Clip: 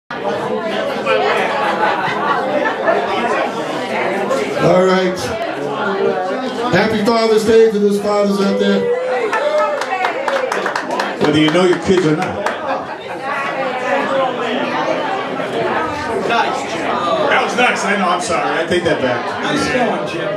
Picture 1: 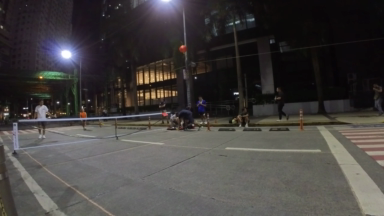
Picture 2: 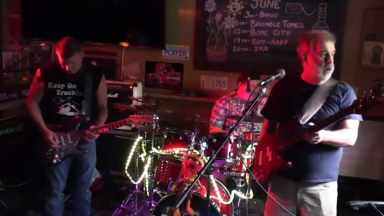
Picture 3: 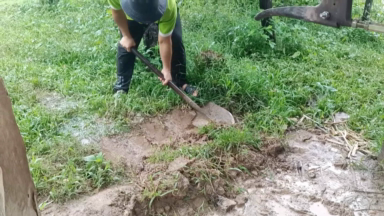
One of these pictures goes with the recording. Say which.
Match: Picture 2